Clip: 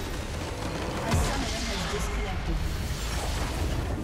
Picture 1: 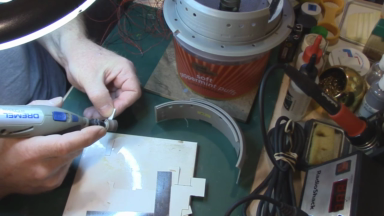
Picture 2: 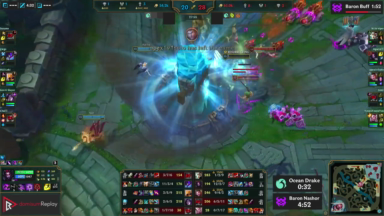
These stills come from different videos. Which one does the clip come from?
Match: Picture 2